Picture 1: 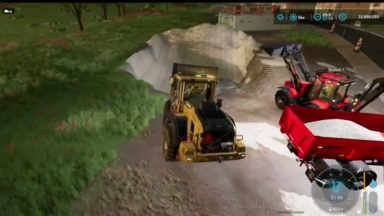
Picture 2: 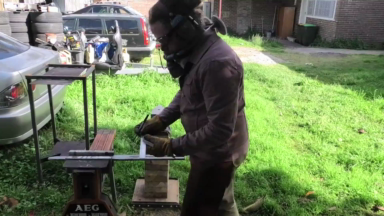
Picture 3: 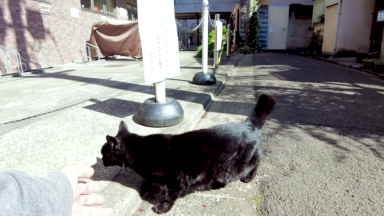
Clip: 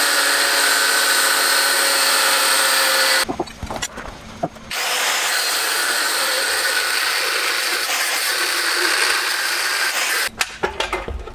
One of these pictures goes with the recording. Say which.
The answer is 2